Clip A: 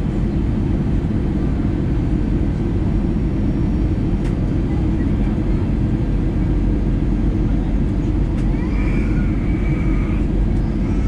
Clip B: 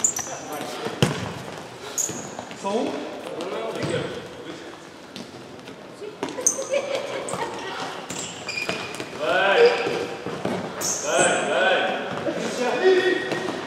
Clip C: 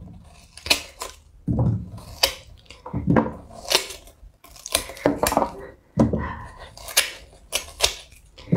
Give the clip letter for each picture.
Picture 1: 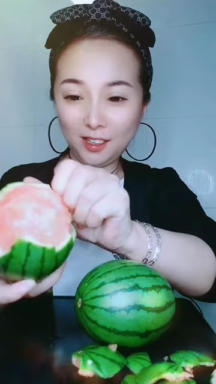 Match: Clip C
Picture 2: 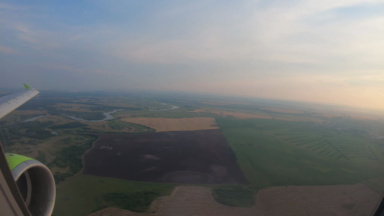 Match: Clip A